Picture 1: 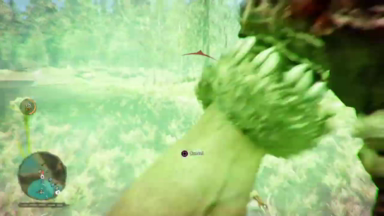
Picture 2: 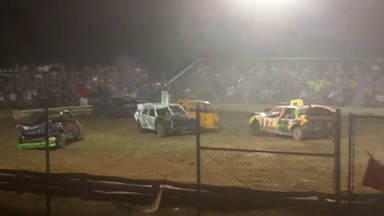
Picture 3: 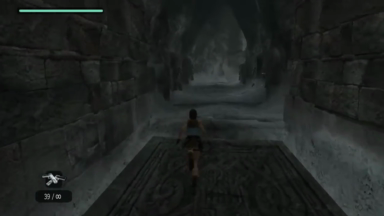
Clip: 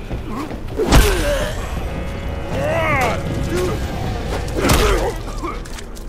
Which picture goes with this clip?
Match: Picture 1